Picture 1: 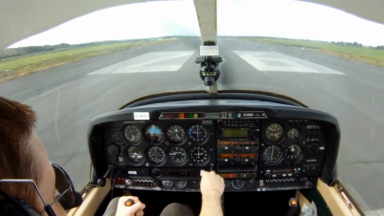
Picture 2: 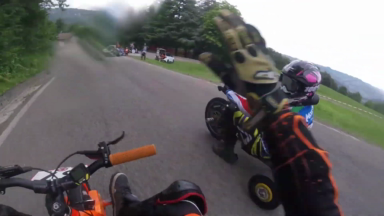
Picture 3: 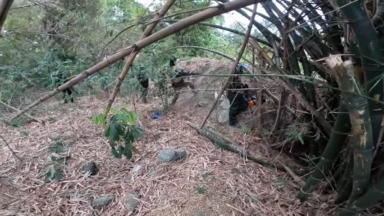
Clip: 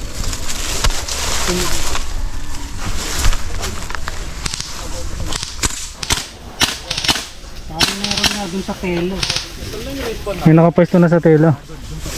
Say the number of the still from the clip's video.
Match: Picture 3